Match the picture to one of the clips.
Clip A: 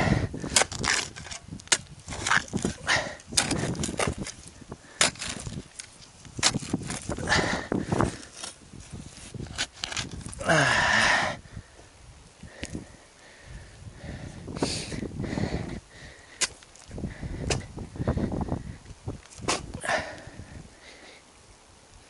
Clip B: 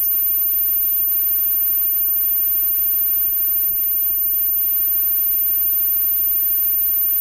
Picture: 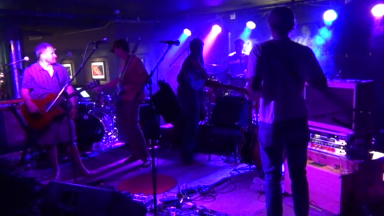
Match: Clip B